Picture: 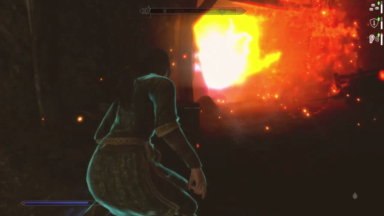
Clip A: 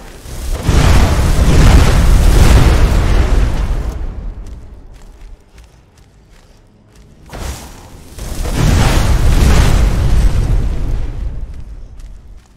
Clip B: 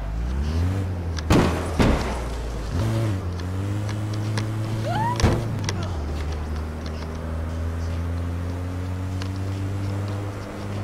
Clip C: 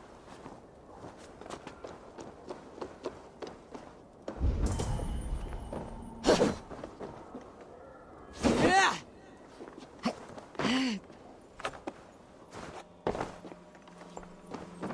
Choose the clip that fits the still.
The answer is A